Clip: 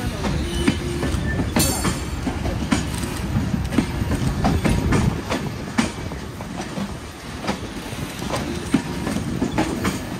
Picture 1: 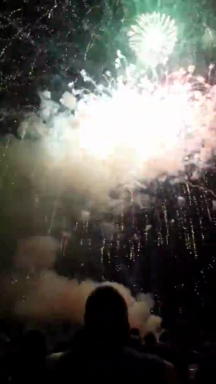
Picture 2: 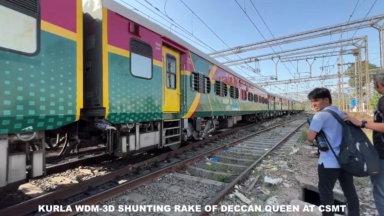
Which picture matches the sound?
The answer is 2